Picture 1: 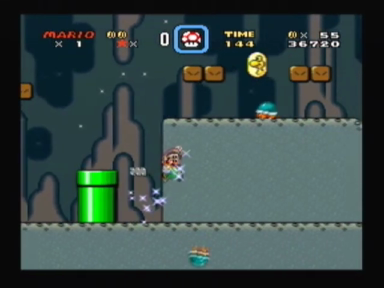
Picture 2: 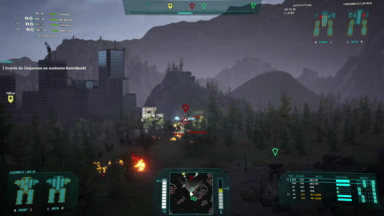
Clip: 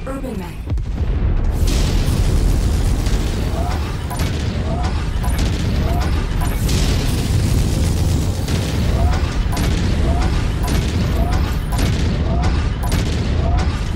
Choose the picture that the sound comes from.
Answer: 2